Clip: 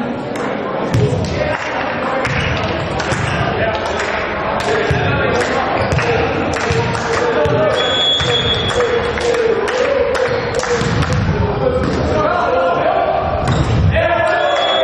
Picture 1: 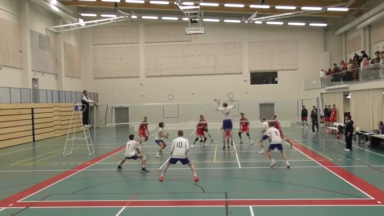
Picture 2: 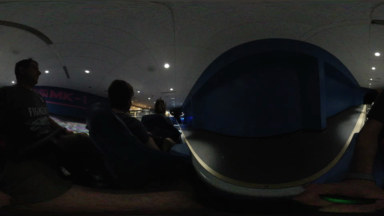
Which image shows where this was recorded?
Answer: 1